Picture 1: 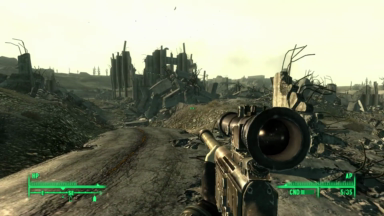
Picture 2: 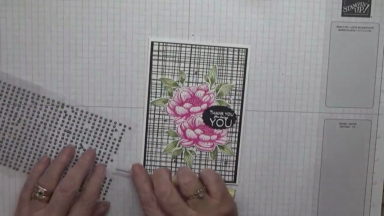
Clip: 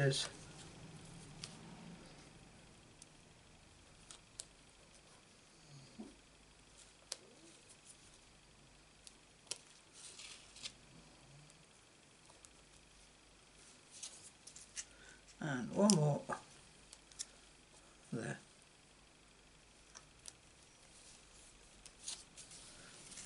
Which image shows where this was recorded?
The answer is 2